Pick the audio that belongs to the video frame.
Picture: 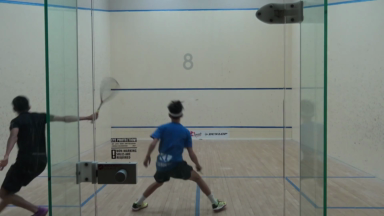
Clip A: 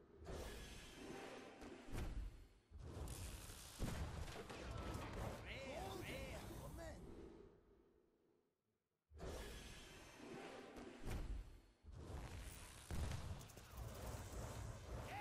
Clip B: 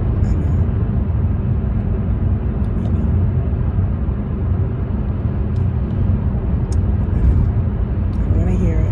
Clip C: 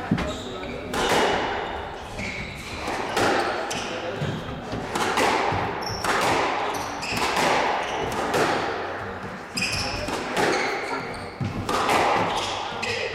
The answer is C